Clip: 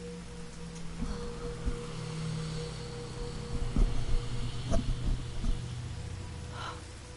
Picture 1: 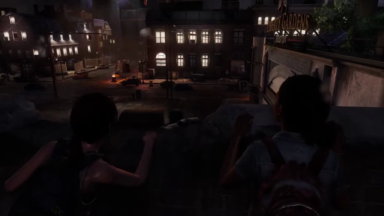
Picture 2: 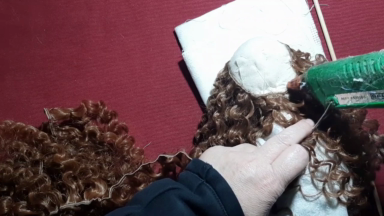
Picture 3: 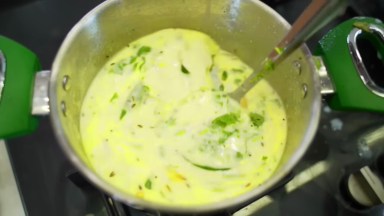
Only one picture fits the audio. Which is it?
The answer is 1